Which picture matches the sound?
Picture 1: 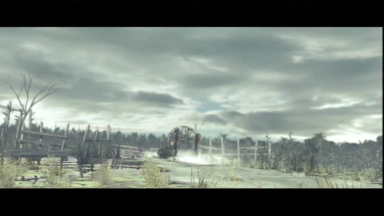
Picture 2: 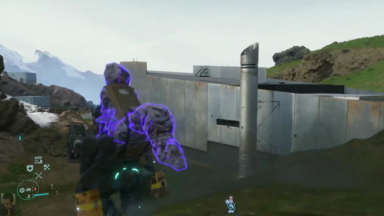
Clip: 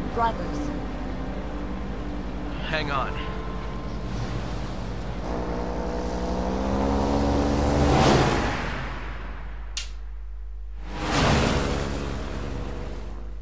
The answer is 1